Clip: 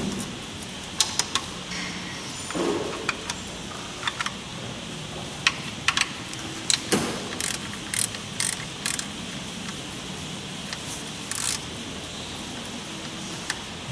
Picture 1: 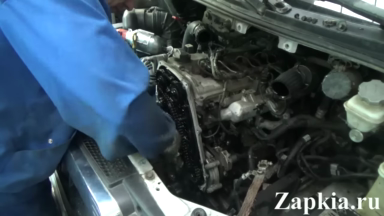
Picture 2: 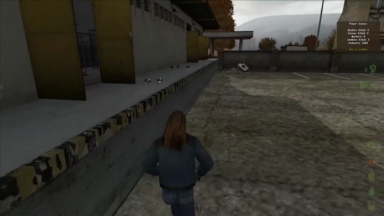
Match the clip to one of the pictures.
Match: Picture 1